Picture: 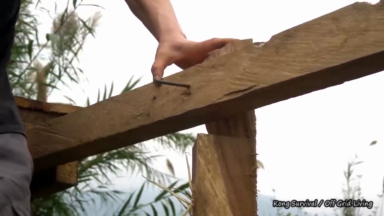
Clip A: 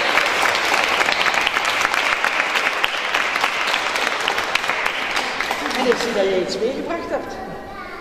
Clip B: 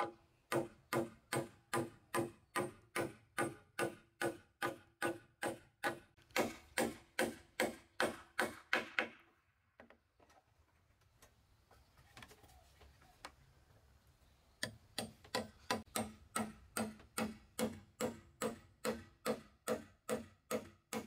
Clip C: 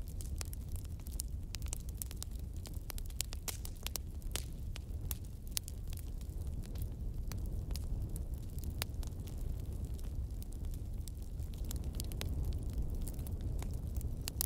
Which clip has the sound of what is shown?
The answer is B